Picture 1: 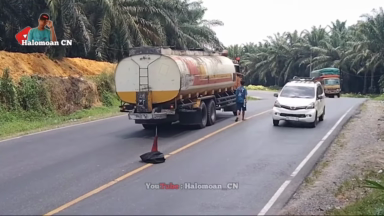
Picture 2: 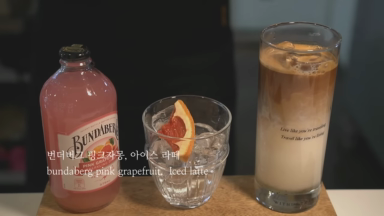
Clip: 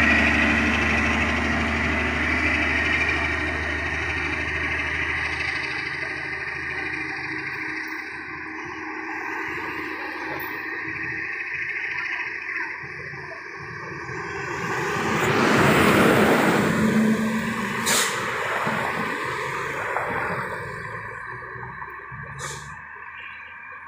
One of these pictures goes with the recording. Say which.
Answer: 1